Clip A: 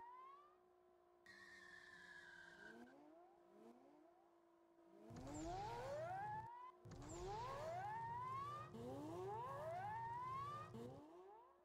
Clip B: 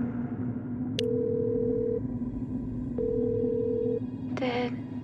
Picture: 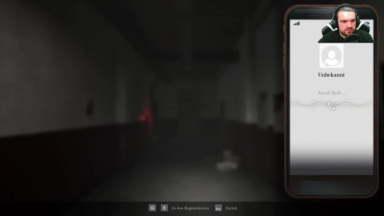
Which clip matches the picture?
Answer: B